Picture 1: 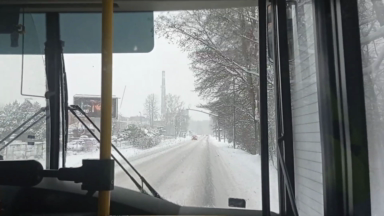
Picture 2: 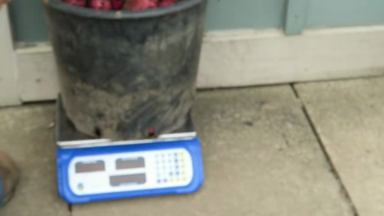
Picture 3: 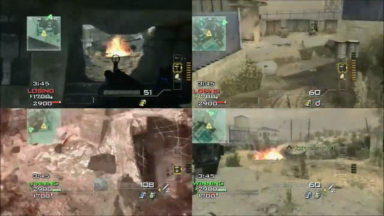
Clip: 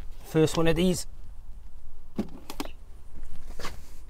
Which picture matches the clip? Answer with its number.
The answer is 2